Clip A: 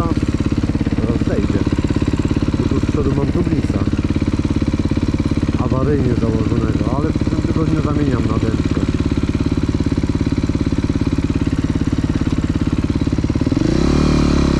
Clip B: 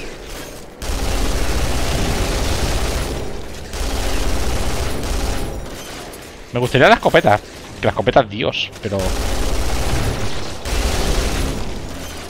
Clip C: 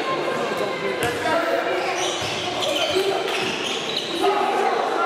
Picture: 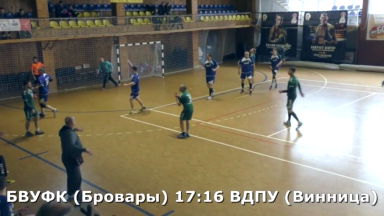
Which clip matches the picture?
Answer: C